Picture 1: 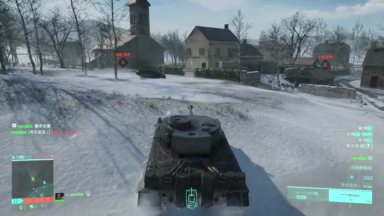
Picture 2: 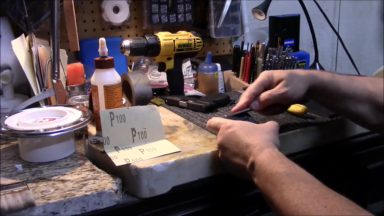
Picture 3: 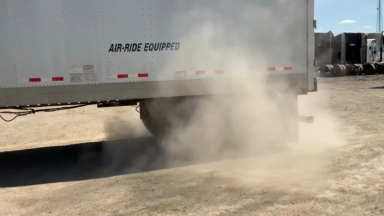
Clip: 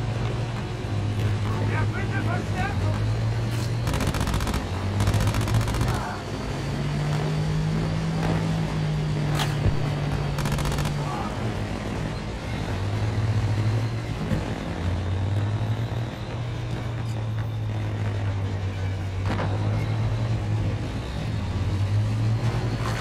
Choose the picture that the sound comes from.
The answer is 1